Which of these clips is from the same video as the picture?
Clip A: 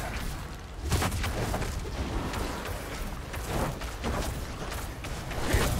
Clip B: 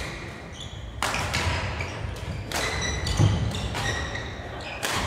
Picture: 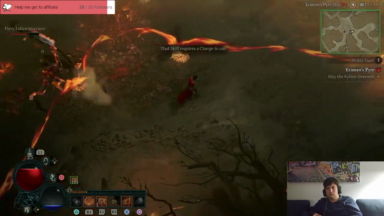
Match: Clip A